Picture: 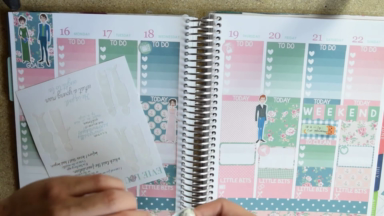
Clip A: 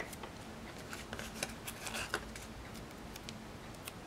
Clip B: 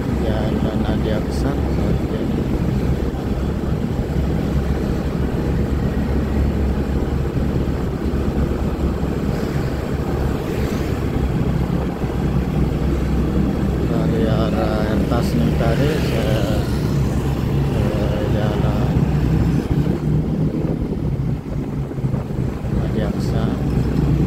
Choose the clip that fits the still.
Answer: A